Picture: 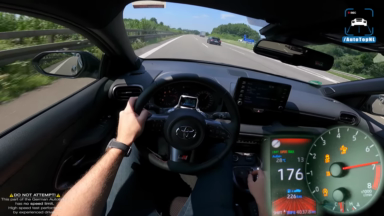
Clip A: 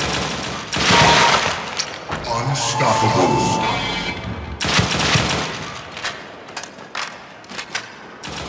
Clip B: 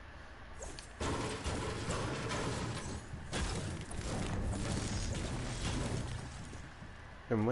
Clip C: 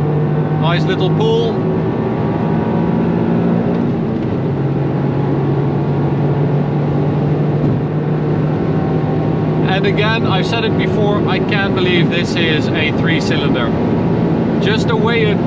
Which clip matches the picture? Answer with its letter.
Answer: C